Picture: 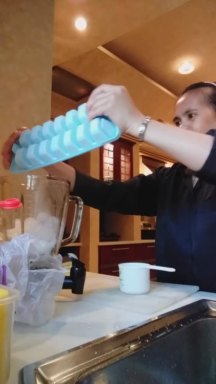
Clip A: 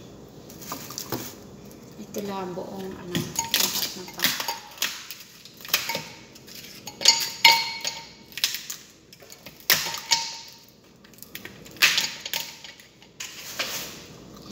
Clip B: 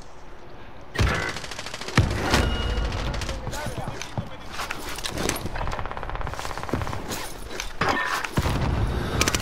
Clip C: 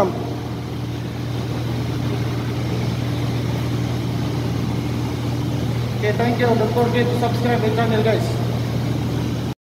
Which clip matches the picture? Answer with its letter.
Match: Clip A